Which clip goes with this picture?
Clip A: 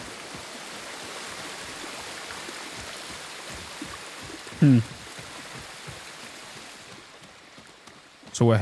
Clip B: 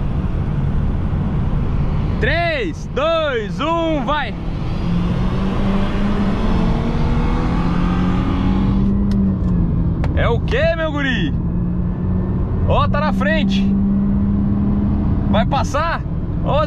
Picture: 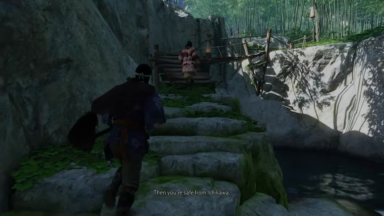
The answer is A